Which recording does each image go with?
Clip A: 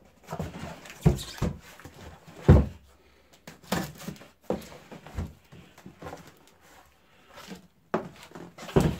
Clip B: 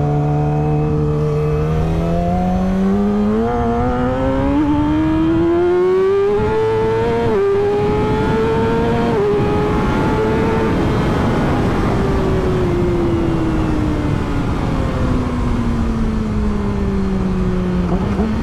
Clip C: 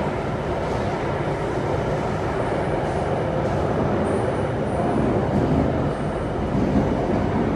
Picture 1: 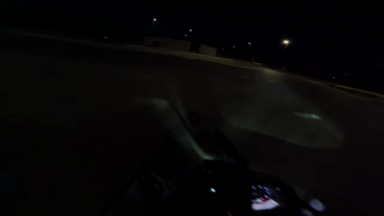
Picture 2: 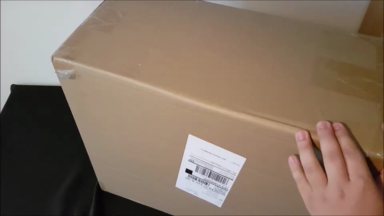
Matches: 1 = B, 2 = A